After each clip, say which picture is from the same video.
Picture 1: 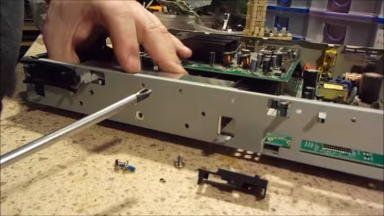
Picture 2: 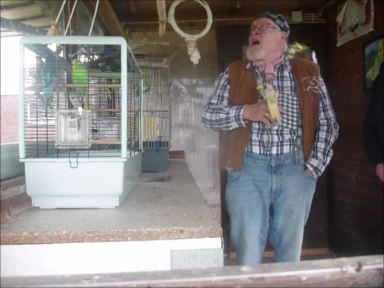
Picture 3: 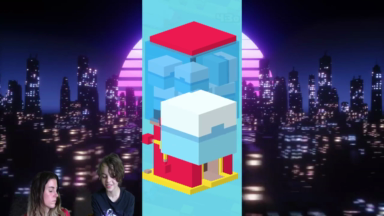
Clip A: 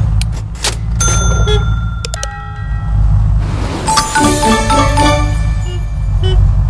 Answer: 3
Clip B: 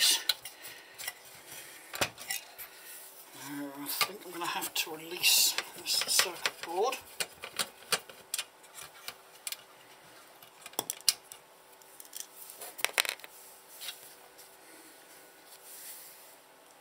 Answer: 1